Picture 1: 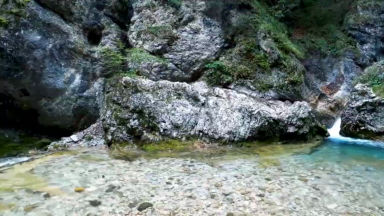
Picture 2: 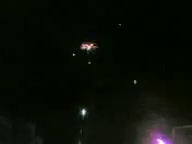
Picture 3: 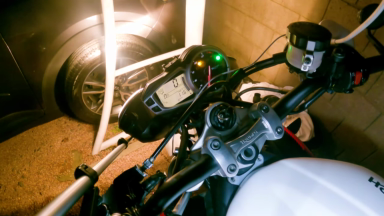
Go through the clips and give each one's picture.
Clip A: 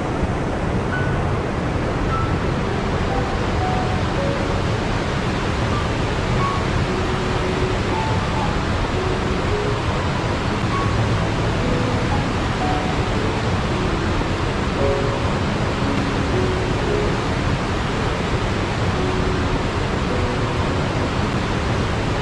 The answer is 1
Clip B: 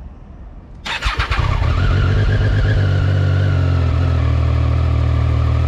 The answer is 3